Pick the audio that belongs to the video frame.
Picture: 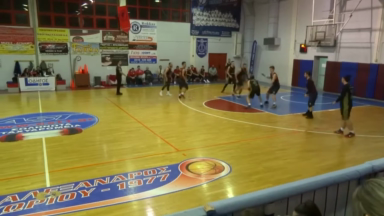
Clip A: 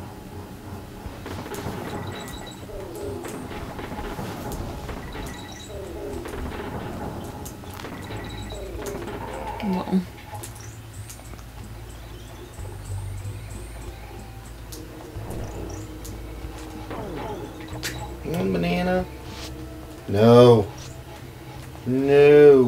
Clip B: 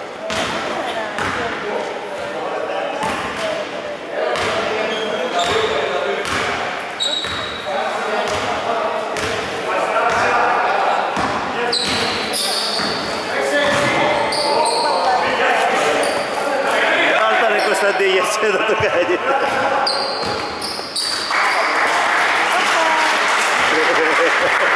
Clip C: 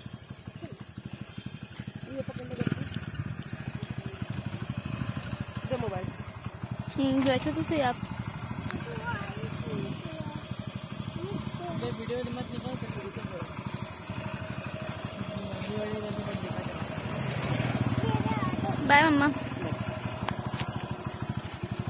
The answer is B